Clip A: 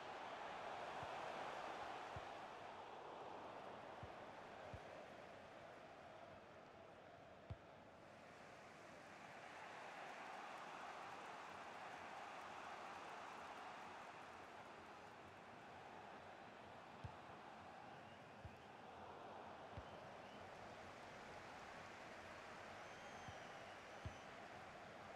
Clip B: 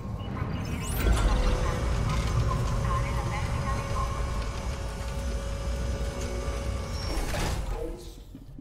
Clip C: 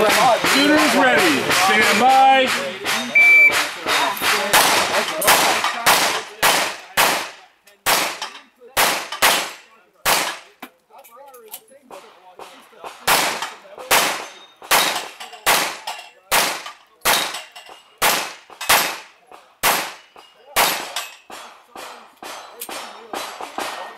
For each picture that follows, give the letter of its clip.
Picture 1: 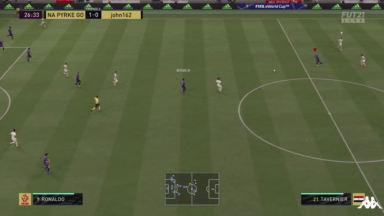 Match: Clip A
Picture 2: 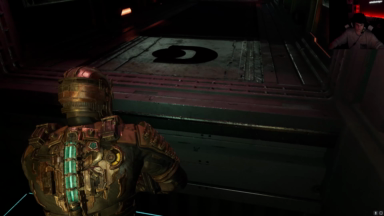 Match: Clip B